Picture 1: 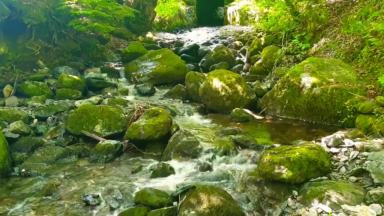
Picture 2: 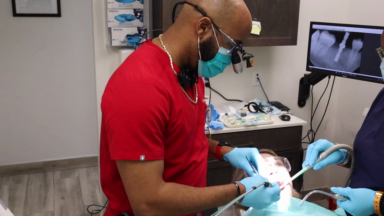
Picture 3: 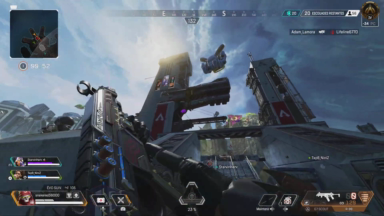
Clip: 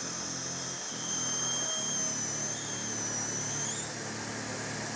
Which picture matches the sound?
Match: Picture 2